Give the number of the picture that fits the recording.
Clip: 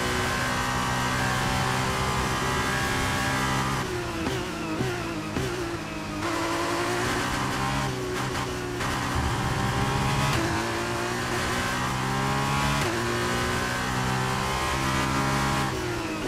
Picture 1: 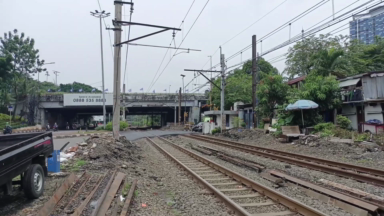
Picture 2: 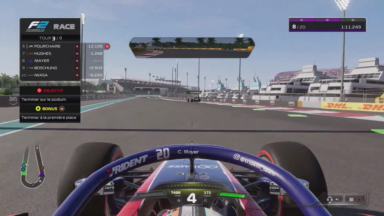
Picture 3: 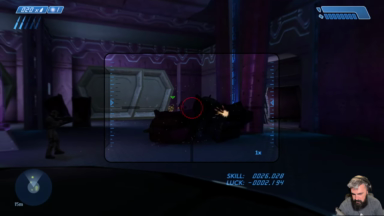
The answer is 2